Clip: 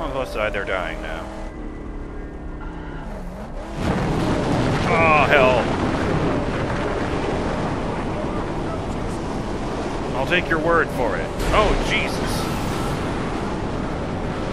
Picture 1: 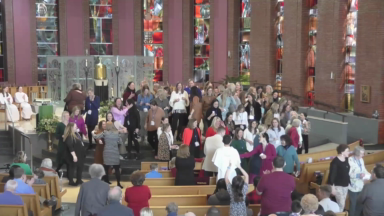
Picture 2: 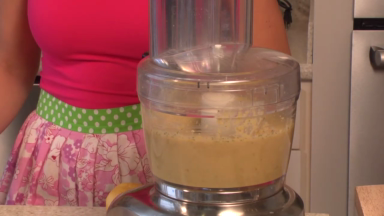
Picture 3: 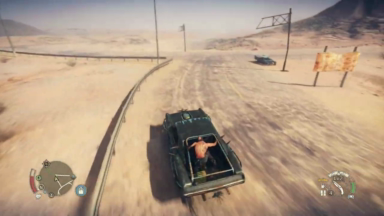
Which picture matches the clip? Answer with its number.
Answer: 3